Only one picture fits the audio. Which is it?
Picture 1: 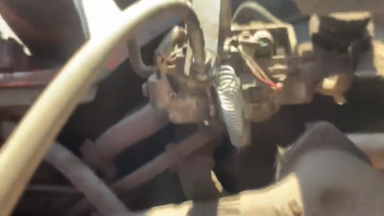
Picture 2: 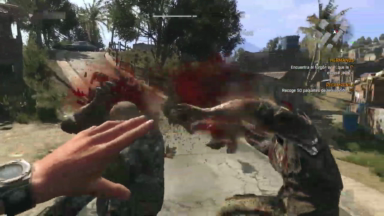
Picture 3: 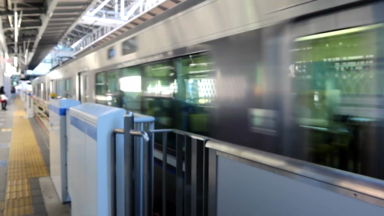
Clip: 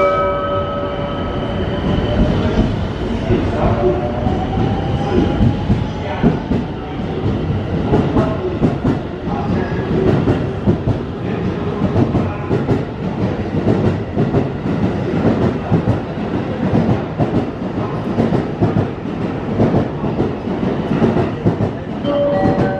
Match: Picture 3